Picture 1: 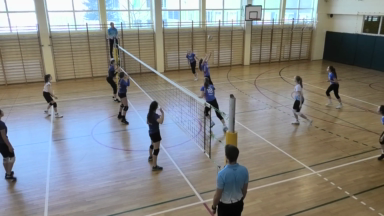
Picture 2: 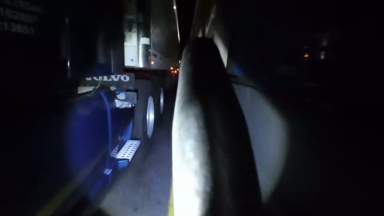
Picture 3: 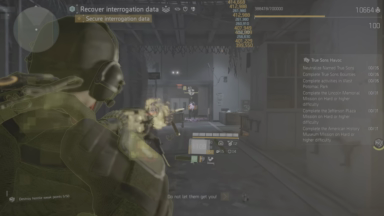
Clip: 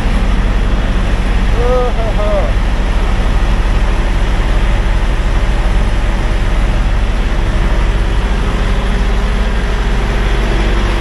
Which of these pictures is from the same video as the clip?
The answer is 2